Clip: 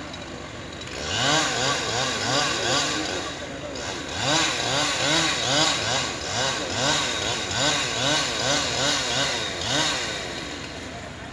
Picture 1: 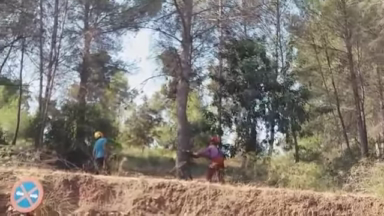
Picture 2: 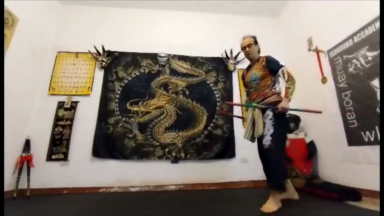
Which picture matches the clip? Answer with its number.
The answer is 1